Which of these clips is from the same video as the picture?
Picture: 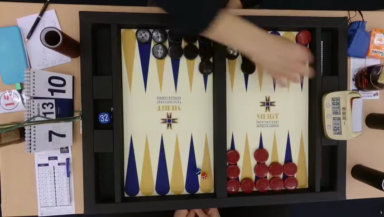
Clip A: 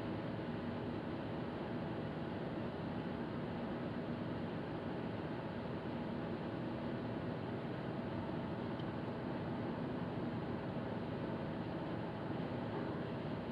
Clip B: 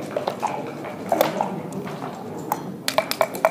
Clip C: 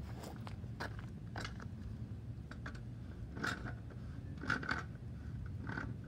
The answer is B